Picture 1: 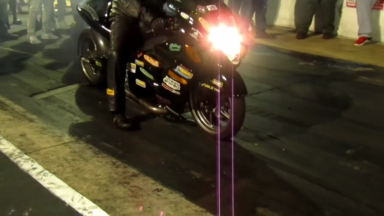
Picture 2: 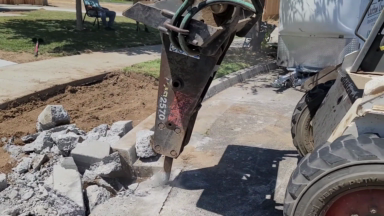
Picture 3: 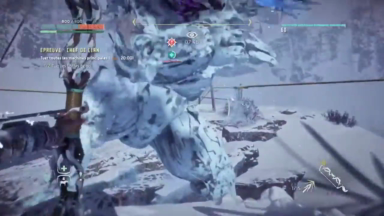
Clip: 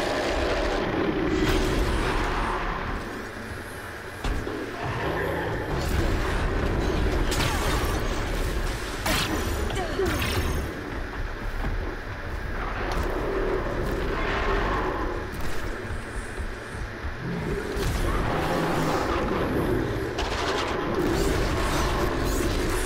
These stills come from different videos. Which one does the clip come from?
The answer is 3